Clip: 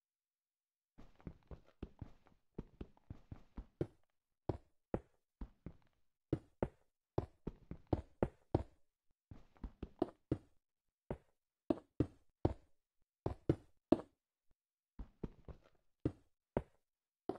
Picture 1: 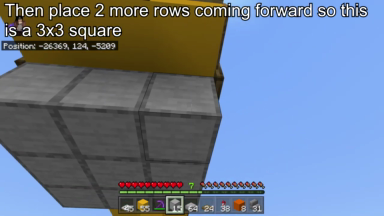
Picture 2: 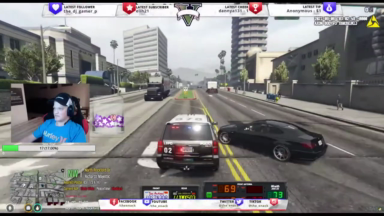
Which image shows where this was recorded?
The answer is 1